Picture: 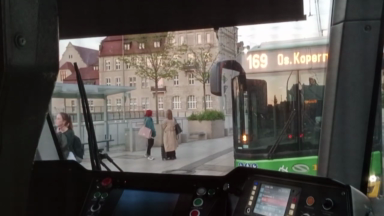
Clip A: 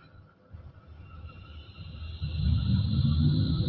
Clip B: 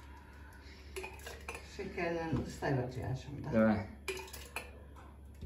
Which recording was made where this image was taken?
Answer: A